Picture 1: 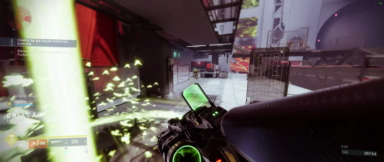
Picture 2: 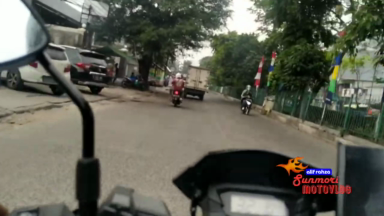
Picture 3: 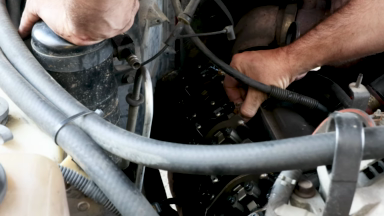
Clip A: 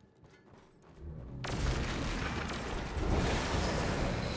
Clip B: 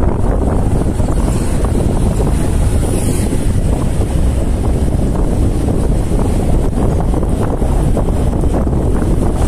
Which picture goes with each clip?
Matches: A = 1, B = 2